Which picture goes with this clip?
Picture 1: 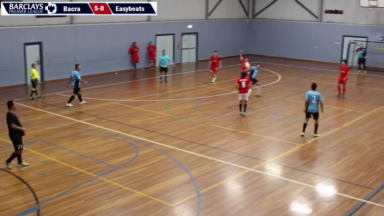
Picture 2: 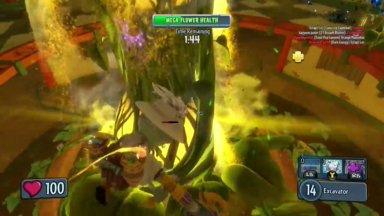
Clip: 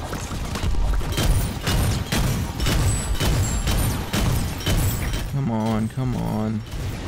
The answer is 2